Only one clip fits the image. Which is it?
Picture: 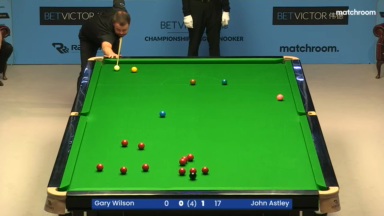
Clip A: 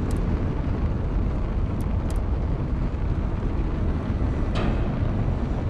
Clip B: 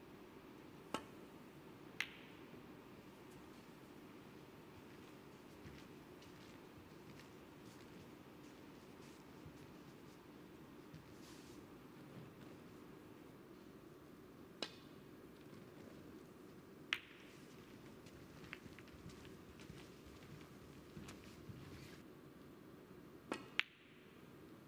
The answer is B